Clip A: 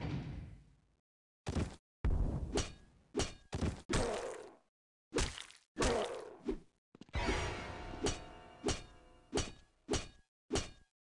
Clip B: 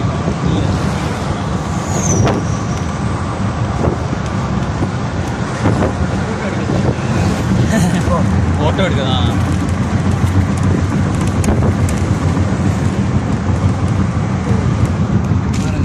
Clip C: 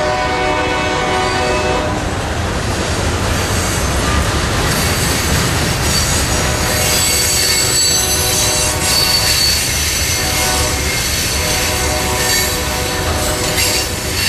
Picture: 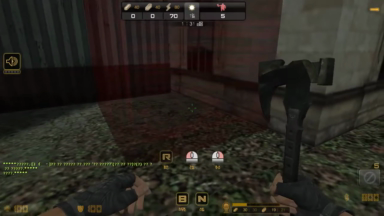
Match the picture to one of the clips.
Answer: A